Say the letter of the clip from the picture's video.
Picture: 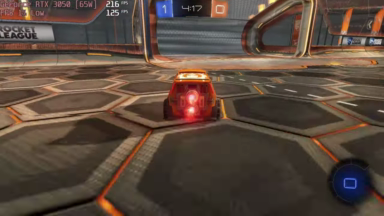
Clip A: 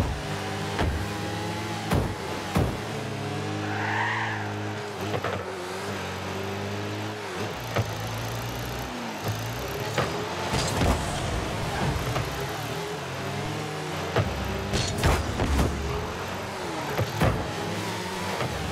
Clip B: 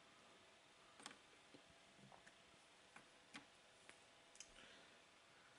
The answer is A